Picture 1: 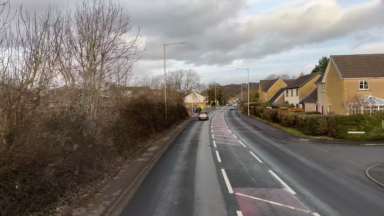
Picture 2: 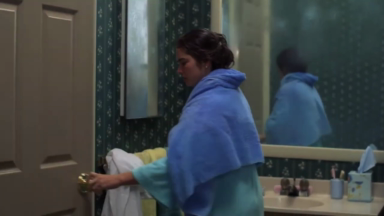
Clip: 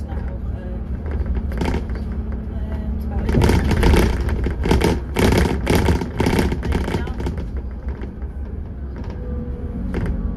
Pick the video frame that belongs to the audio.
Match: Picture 1